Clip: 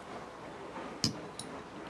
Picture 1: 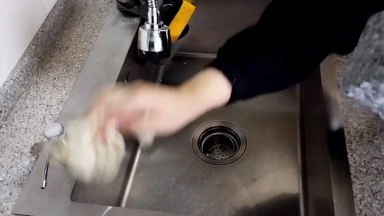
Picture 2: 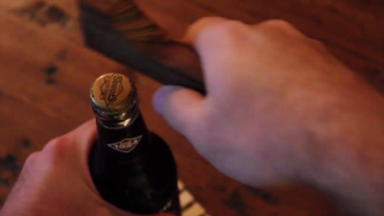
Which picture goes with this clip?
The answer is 2